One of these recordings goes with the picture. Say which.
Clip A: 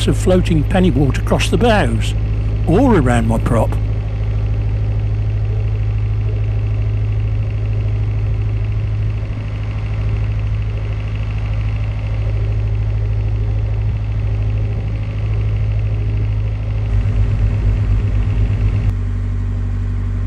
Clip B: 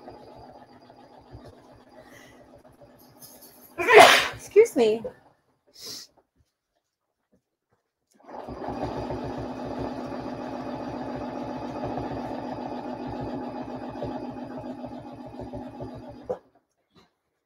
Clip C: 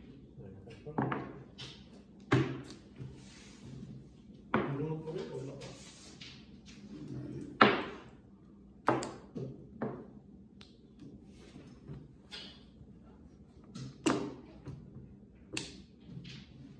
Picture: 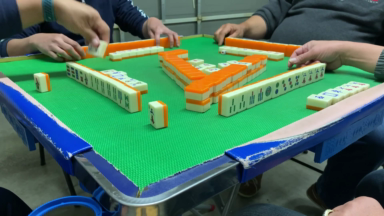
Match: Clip C